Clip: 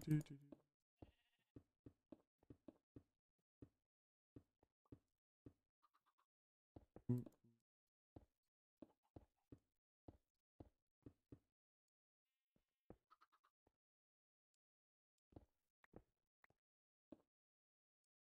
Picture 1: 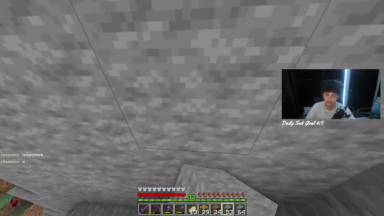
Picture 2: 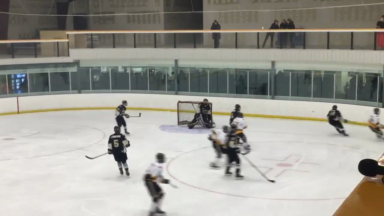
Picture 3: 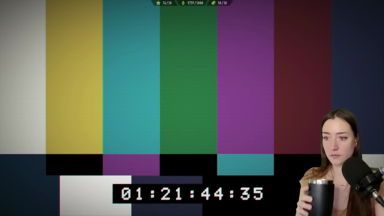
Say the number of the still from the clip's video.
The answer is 1